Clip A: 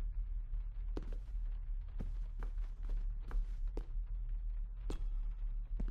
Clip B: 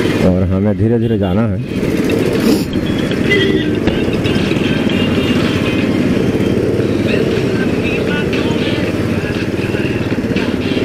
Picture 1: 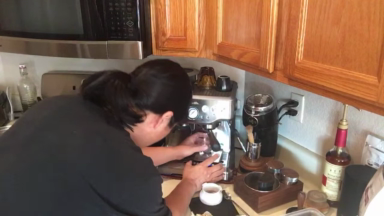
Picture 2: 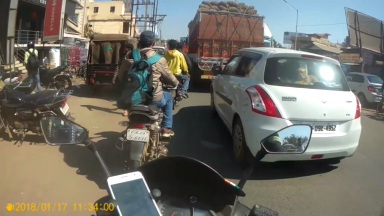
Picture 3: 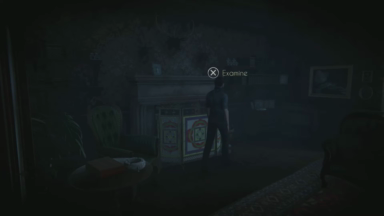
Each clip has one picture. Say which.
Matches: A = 3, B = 2